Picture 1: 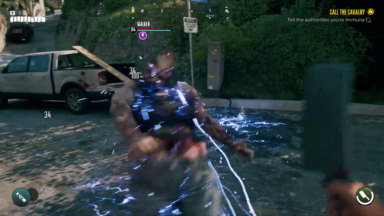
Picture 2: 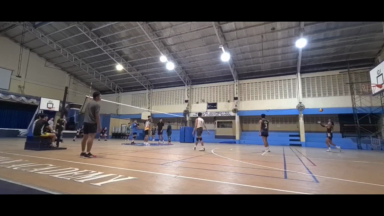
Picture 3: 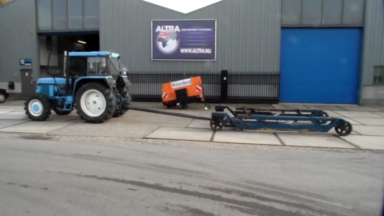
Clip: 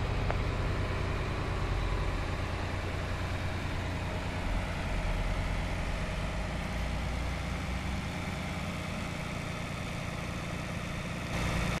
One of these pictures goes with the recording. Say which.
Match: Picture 3